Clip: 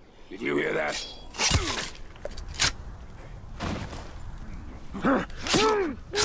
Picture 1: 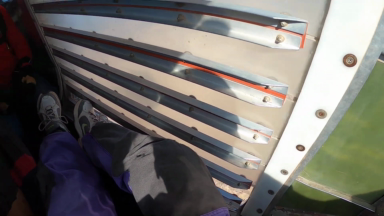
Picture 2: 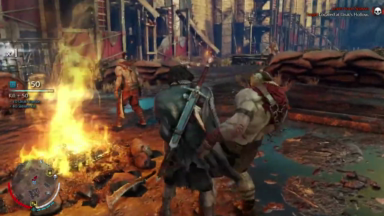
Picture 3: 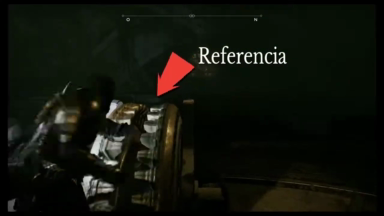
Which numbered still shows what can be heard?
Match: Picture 2